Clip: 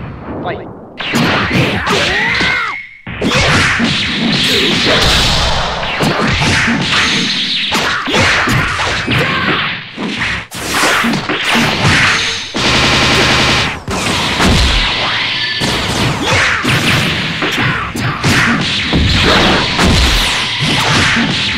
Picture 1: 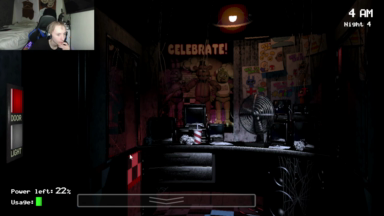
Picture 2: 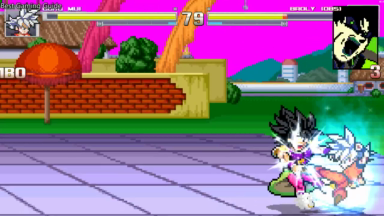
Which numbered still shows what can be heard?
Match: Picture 2